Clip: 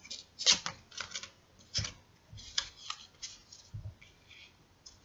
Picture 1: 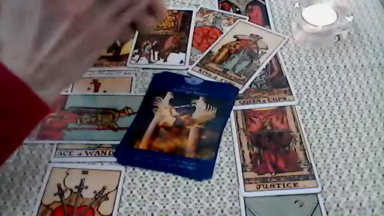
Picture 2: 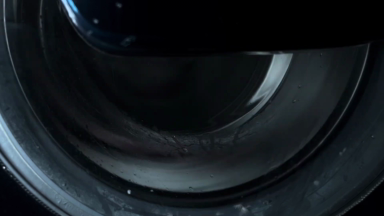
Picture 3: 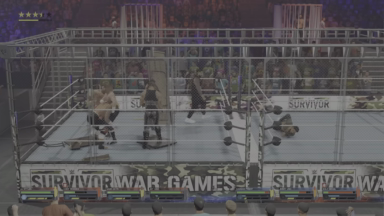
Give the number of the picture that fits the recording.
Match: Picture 1